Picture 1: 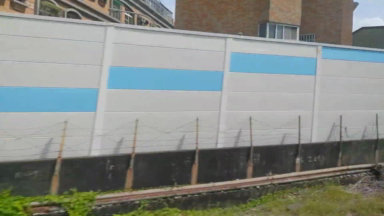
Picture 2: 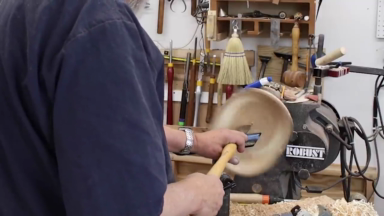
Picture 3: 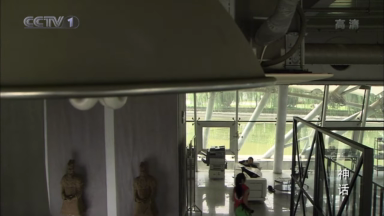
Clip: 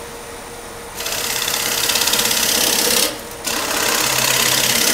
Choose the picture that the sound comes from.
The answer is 2